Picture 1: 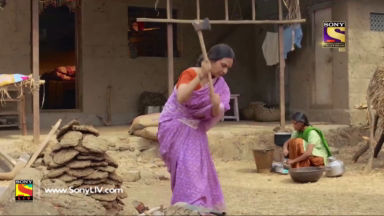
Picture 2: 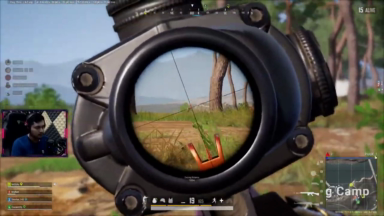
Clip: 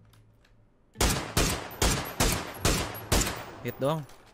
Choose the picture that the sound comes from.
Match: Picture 2